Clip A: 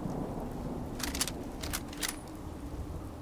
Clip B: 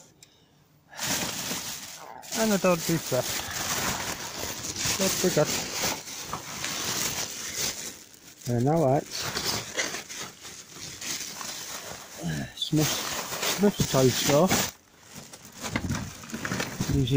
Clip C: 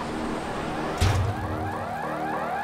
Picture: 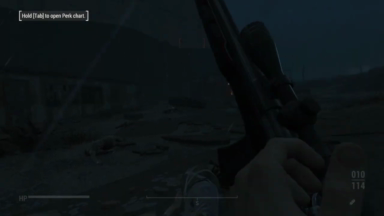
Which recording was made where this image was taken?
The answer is A